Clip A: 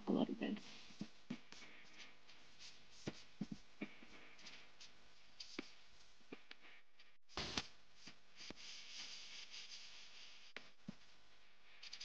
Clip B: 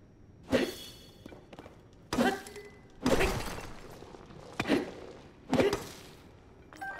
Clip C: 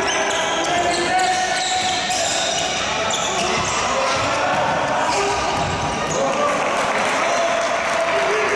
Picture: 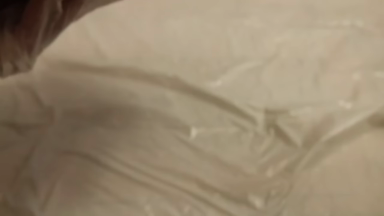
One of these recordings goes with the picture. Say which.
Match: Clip A